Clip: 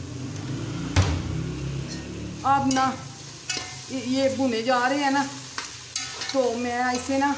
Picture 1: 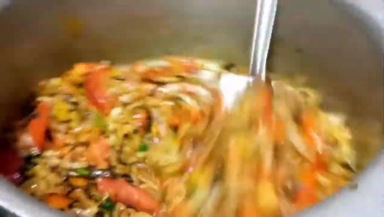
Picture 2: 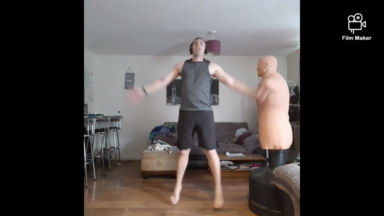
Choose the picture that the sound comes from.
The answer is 1